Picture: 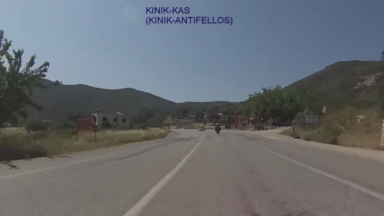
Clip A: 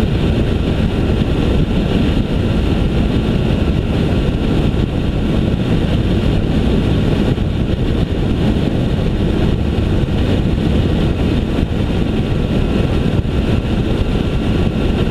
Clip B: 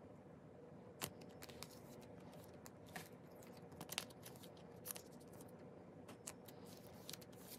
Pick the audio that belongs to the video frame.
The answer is A